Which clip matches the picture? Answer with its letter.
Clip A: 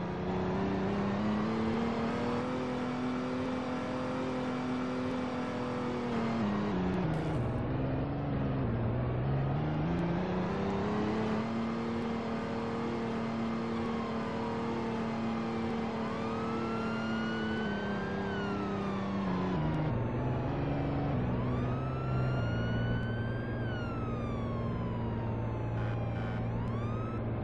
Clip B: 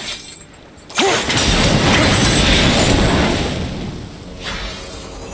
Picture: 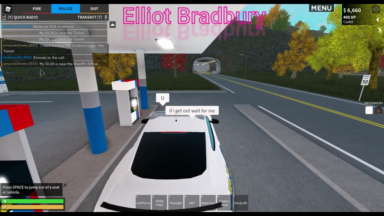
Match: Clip A